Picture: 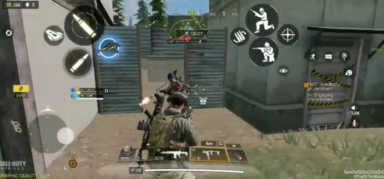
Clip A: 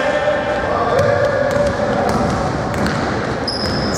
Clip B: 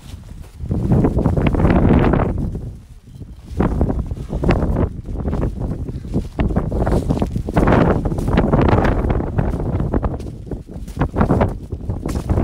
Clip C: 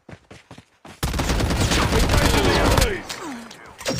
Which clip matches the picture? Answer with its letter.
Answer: C